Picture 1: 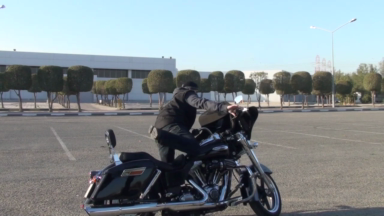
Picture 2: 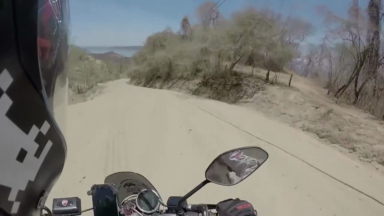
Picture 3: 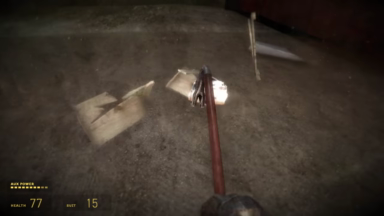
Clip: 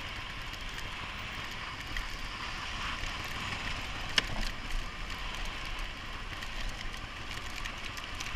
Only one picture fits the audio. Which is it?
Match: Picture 2